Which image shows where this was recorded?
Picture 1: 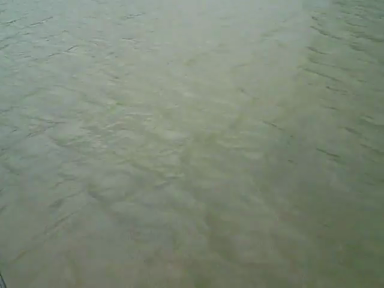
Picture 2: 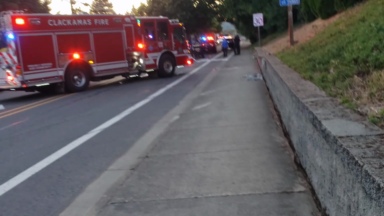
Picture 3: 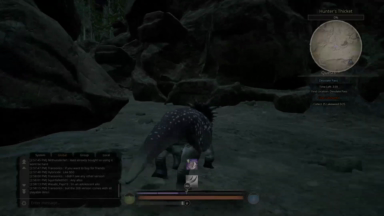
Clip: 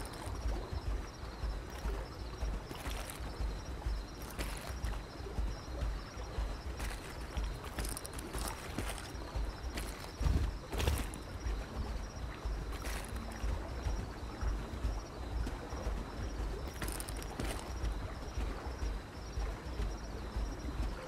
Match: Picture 3